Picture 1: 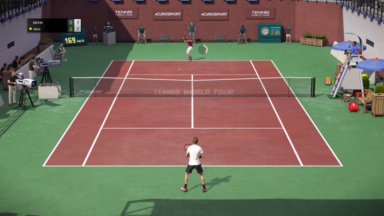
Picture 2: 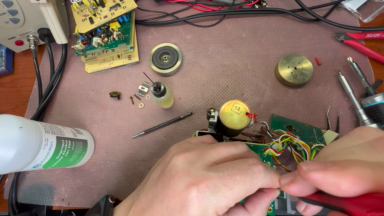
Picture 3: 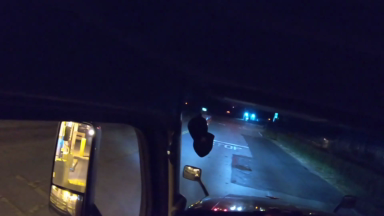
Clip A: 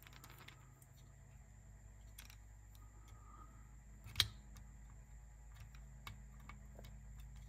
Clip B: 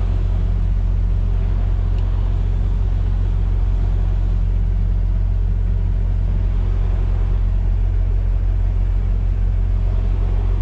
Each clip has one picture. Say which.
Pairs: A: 2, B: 3